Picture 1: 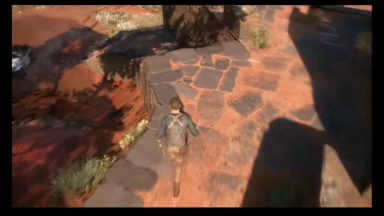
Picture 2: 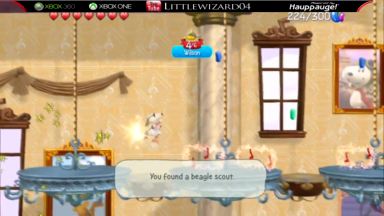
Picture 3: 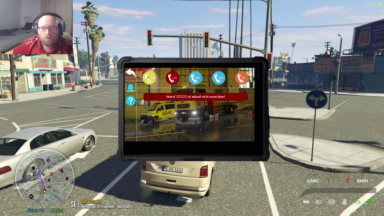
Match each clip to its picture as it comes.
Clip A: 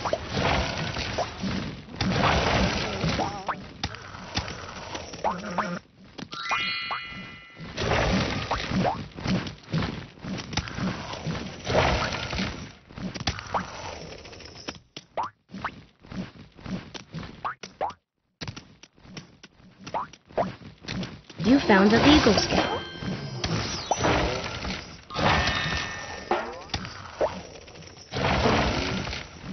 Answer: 2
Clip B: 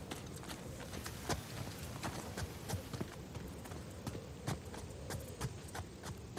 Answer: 1